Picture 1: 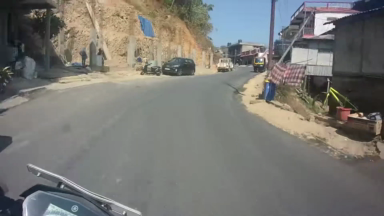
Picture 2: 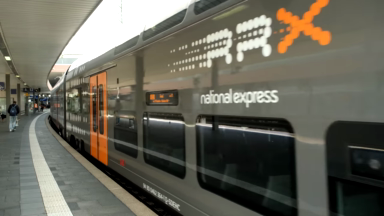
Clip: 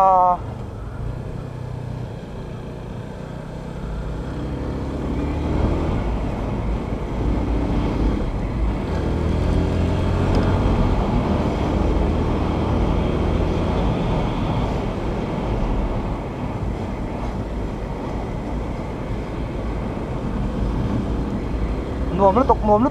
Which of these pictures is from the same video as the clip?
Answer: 1